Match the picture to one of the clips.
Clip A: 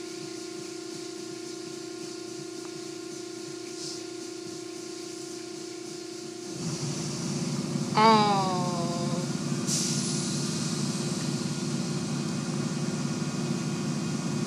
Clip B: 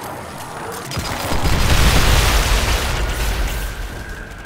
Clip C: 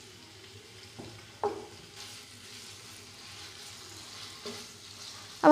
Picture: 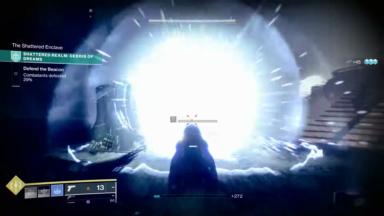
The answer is B